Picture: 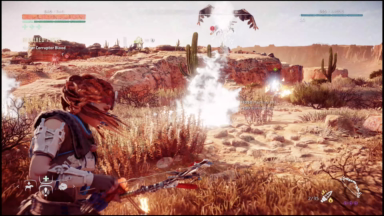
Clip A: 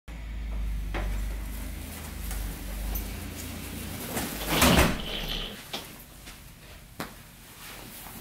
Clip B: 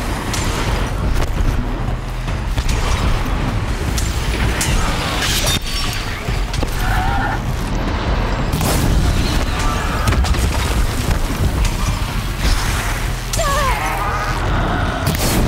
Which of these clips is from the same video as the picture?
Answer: B